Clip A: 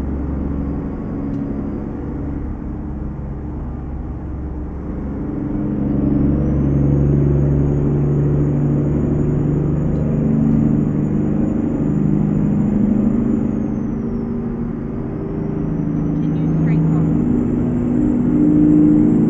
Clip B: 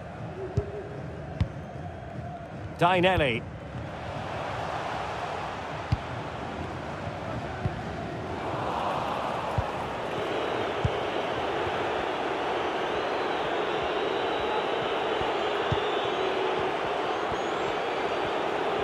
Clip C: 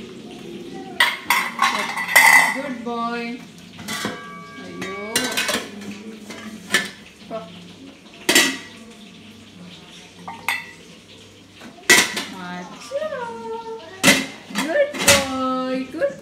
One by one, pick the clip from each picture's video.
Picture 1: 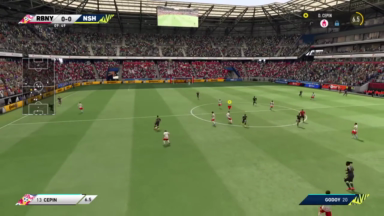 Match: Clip B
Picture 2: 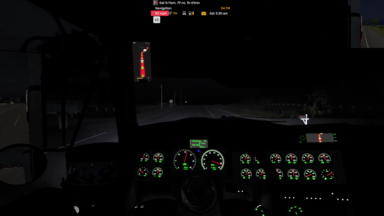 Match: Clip A